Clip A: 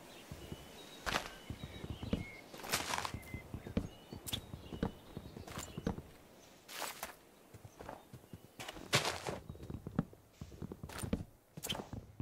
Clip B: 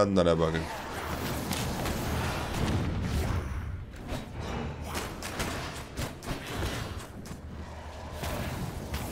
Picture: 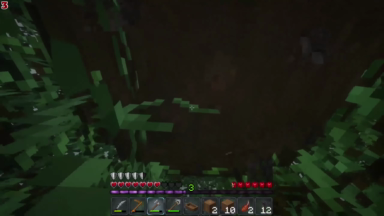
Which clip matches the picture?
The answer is A